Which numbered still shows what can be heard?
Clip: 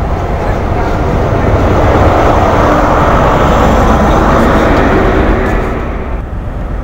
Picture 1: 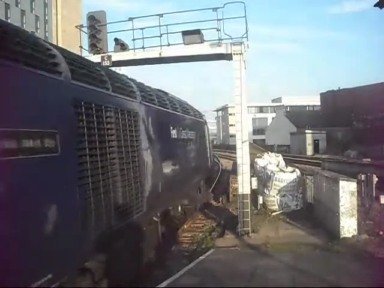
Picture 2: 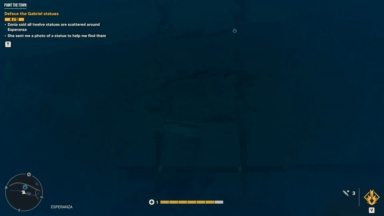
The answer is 1